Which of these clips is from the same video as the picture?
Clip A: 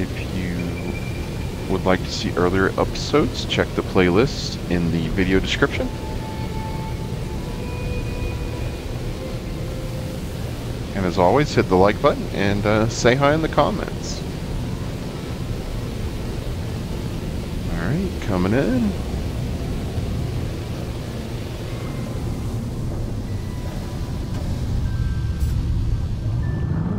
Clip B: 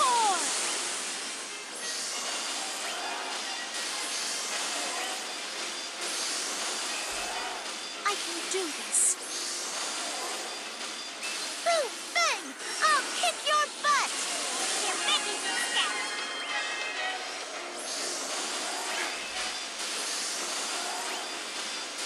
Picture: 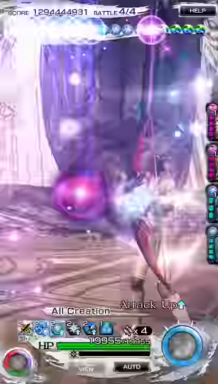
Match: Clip B